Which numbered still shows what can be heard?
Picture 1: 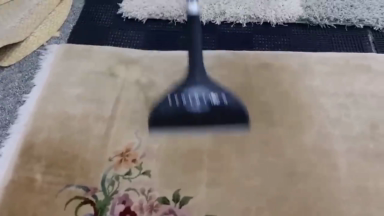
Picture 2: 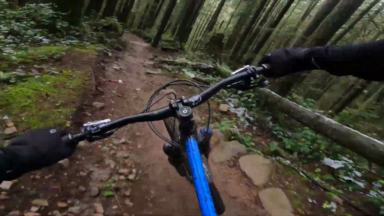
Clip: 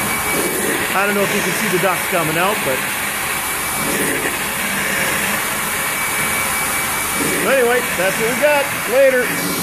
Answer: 1